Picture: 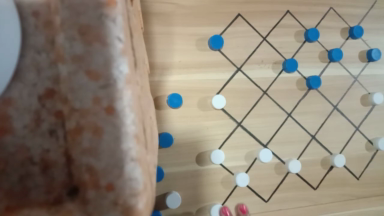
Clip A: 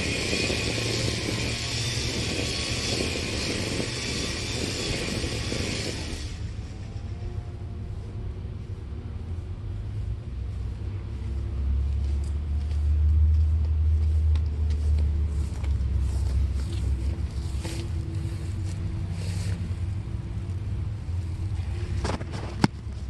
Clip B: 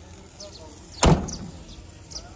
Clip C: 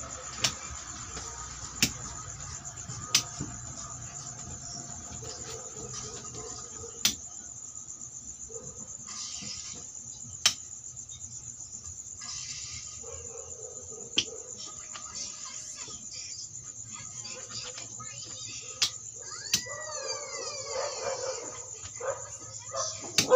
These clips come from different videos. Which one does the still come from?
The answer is C